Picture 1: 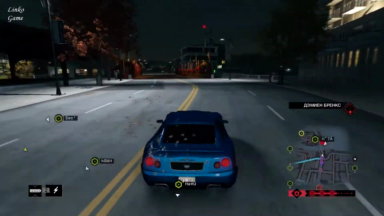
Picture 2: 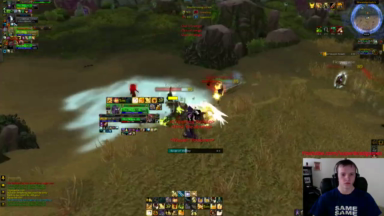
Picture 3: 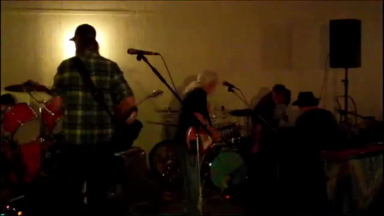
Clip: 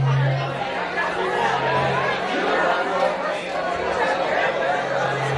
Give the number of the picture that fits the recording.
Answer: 3